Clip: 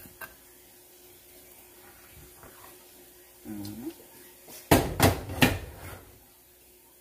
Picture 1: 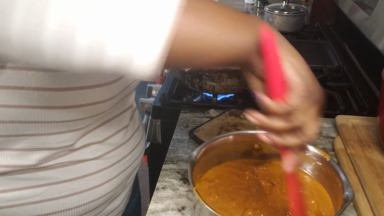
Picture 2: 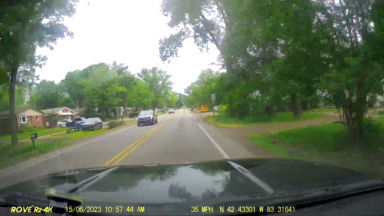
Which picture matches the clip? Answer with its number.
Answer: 1